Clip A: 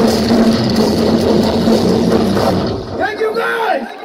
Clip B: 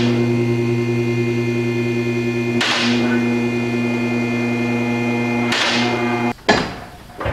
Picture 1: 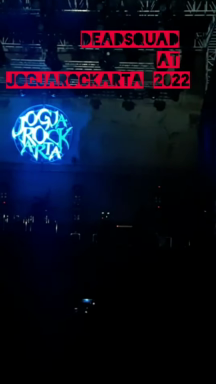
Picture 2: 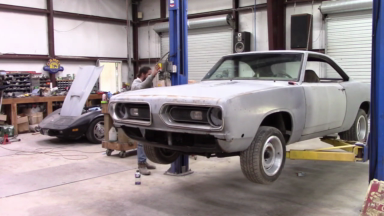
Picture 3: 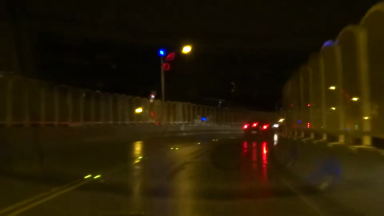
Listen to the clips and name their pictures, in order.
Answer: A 1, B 2